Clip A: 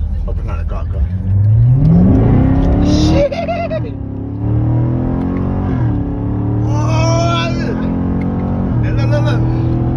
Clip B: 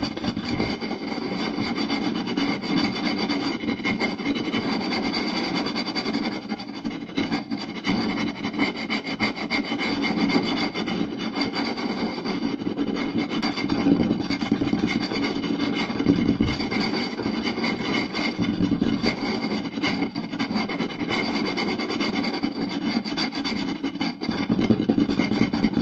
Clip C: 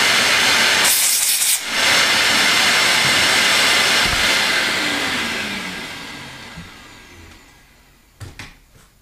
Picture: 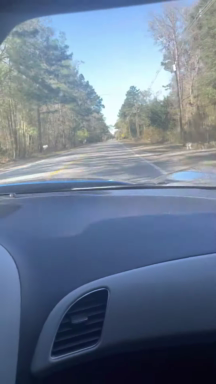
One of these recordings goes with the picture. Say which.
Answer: A